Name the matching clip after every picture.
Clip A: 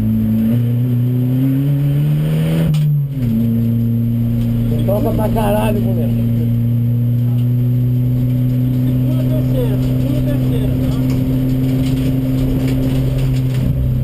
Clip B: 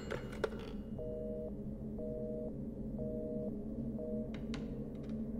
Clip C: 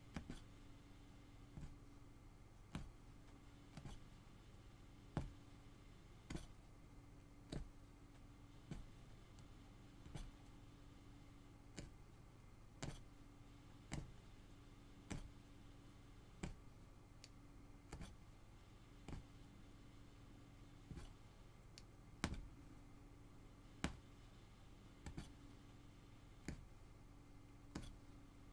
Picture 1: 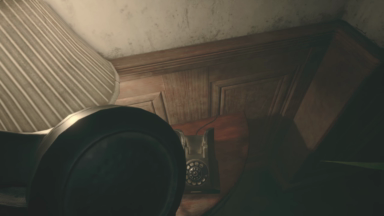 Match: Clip B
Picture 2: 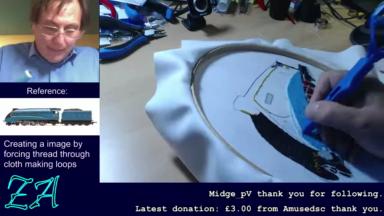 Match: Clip C